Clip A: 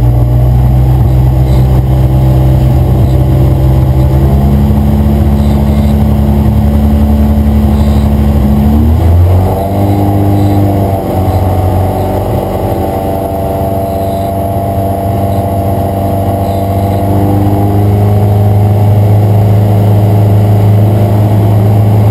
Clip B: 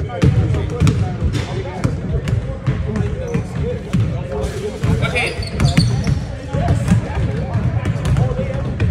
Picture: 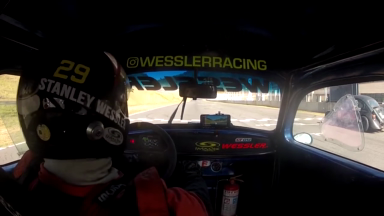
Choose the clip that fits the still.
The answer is A